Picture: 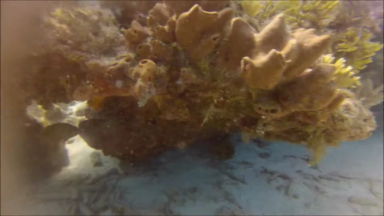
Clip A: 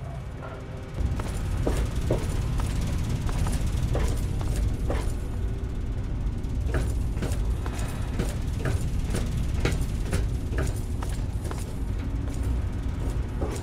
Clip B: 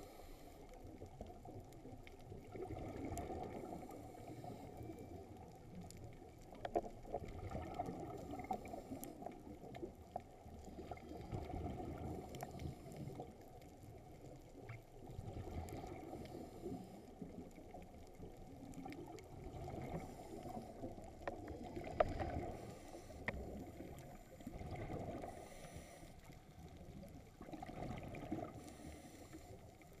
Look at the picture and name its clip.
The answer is B